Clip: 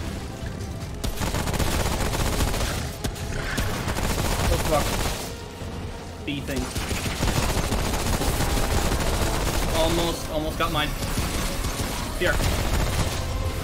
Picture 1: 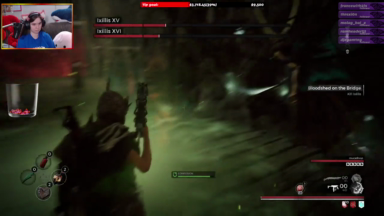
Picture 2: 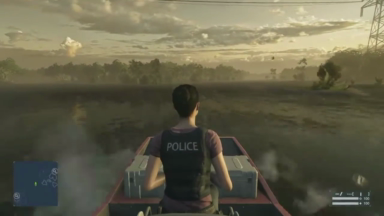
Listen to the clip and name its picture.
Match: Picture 1